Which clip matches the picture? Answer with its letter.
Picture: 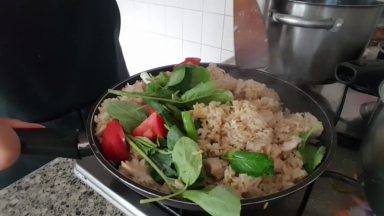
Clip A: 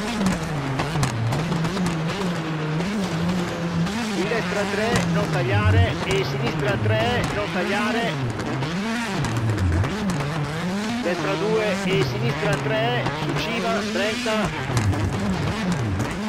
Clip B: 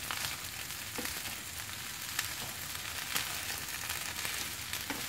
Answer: B